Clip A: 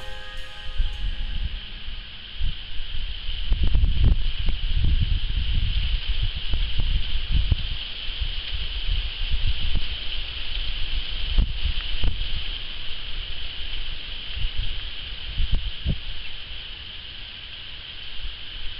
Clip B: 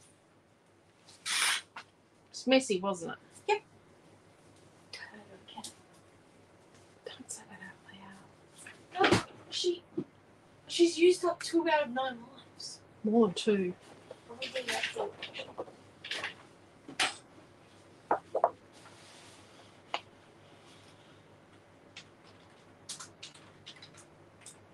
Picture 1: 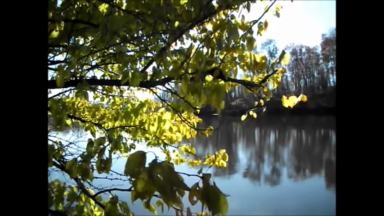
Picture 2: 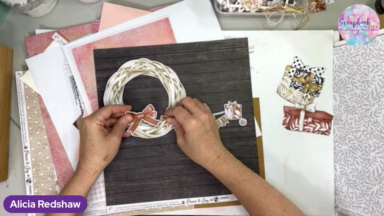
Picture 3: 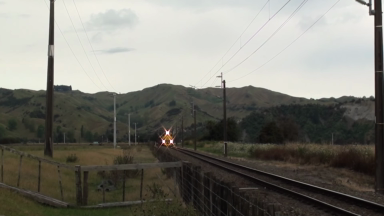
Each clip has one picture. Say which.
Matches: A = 1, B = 2